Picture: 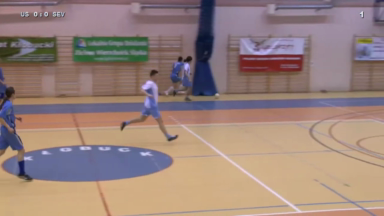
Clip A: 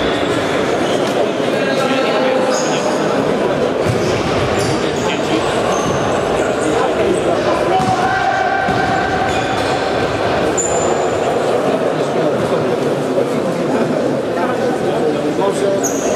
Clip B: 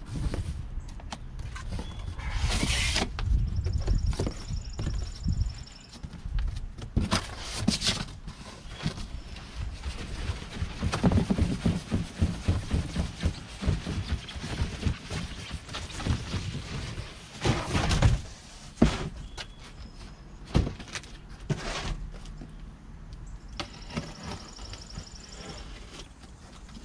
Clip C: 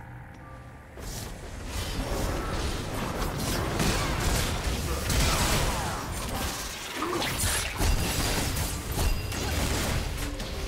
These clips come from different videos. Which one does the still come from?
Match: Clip A